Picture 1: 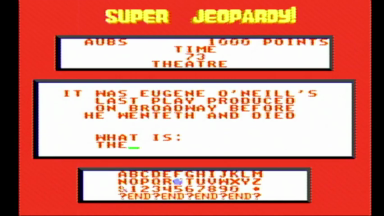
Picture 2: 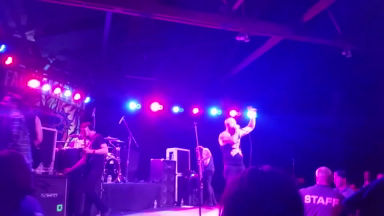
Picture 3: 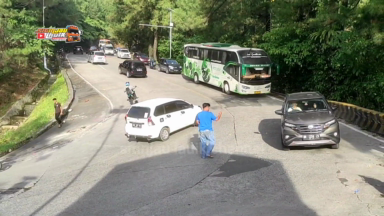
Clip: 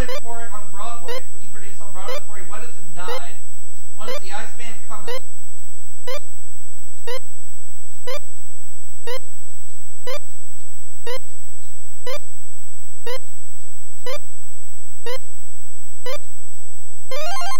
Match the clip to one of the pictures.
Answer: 1